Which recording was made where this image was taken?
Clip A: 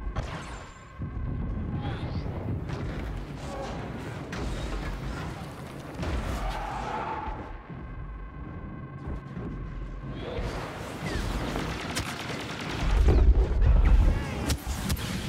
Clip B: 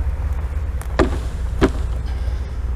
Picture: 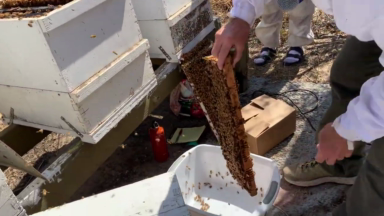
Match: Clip B